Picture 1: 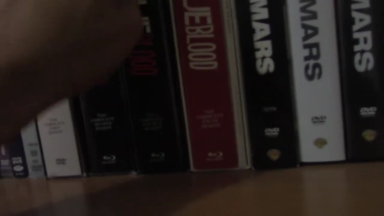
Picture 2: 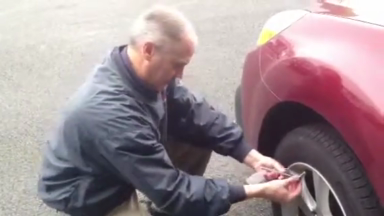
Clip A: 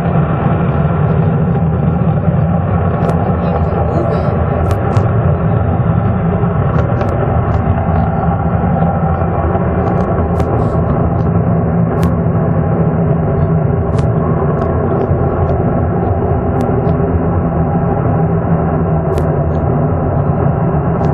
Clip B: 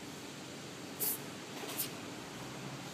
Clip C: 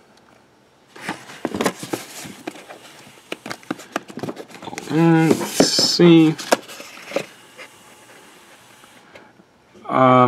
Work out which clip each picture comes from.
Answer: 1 C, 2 B